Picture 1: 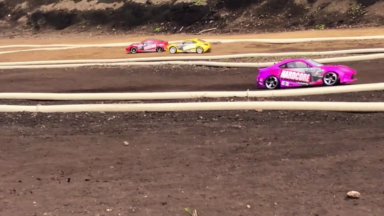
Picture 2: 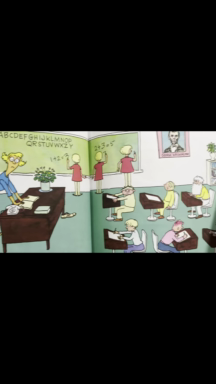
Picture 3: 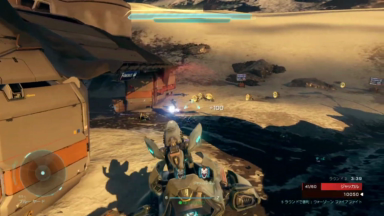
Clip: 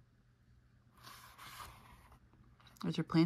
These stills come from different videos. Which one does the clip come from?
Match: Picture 2